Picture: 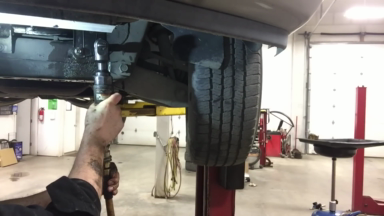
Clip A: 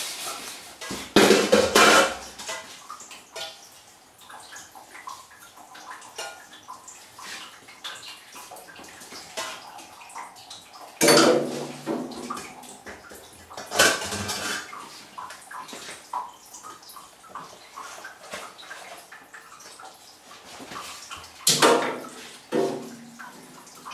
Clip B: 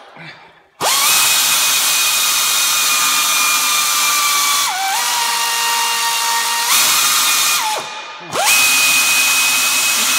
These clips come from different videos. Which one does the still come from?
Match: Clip B